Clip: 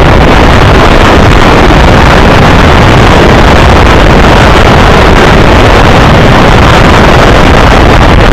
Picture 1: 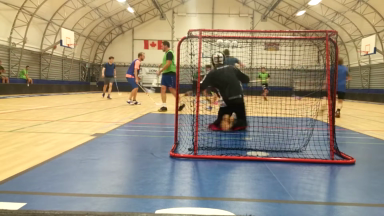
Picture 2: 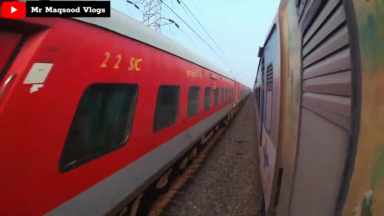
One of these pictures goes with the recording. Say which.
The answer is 2